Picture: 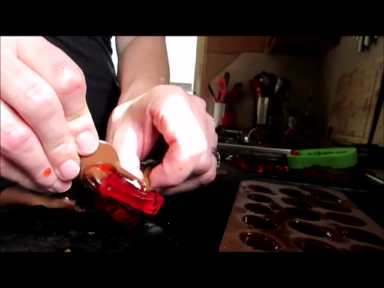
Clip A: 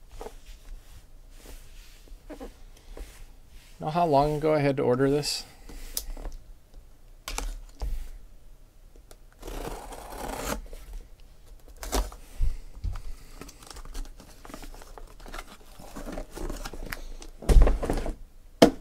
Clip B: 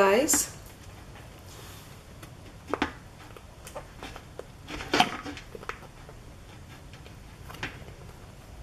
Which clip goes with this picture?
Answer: B